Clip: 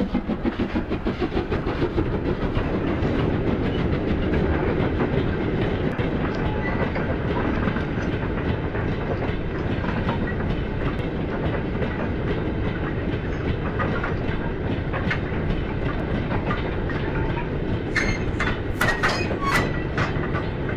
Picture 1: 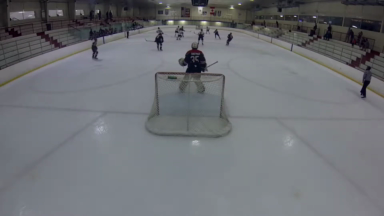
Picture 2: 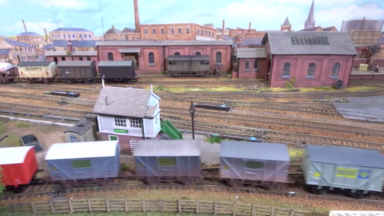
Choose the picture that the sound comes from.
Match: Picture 2